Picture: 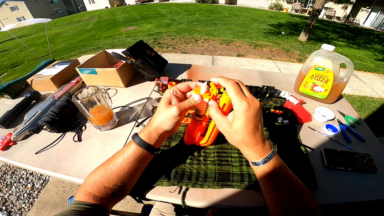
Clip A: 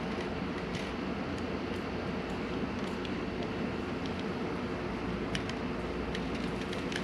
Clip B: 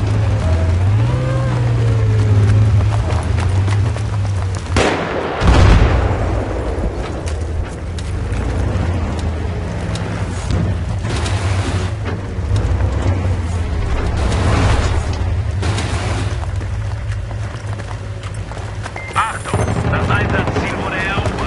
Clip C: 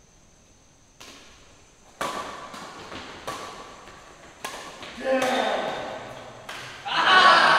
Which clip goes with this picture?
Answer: A